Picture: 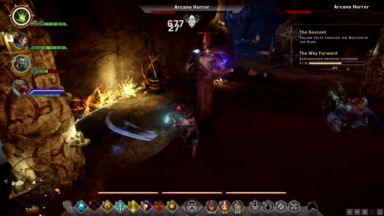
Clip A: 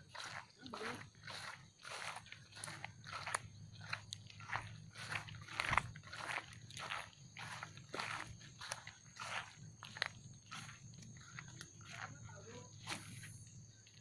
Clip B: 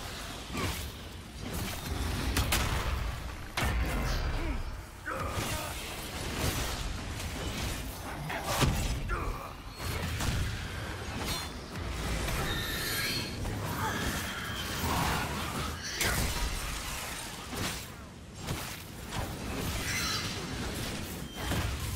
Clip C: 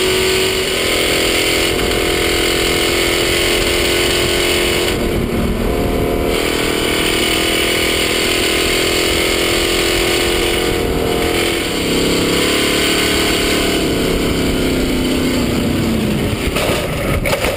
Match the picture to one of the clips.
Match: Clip B